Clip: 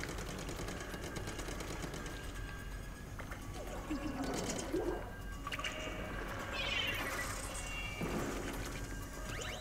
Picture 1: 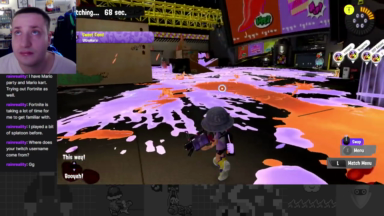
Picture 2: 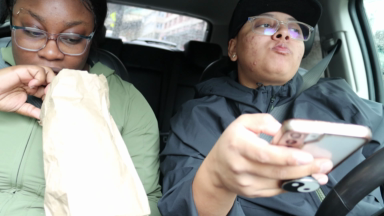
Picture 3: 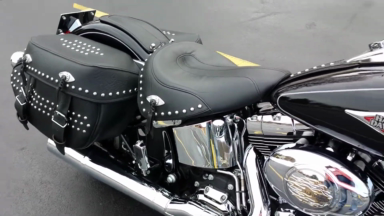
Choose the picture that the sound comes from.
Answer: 1